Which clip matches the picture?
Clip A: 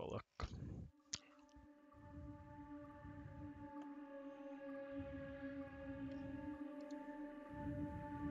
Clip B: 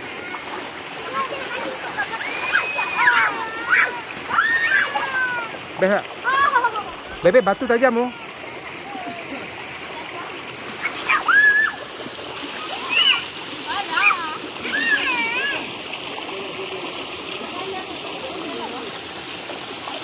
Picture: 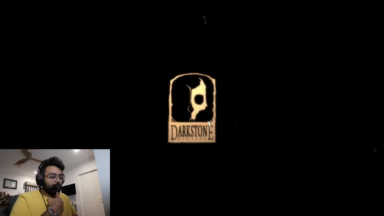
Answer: A